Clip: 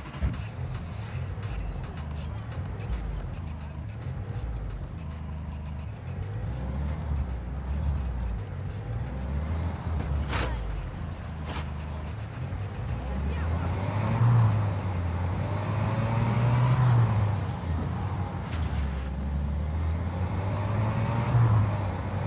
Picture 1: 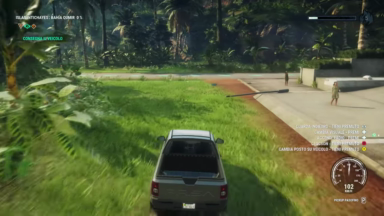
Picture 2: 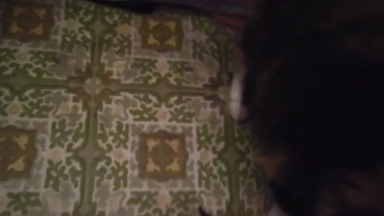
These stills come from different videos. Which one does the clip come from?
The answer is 1